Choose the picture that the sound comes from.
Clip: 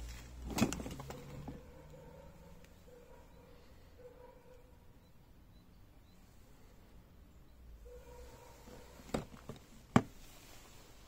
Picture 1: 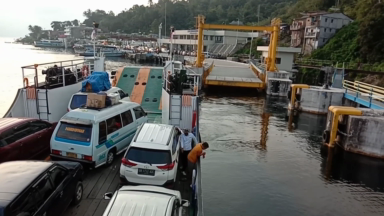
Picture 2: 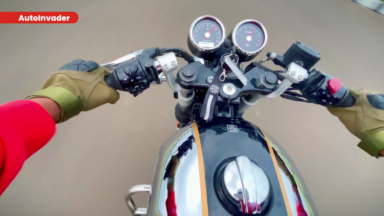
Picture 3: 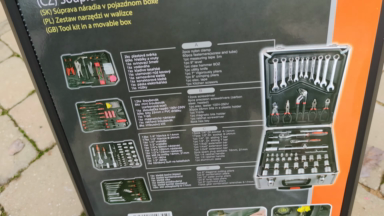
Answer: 3